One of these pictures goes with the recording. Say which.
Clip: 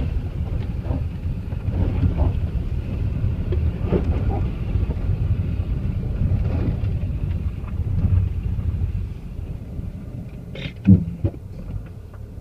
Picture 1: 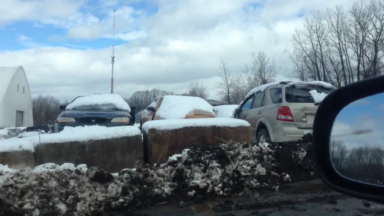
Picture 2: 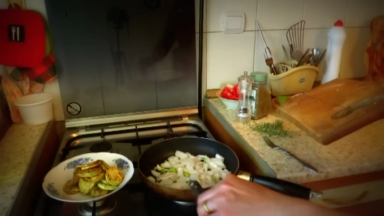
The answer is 1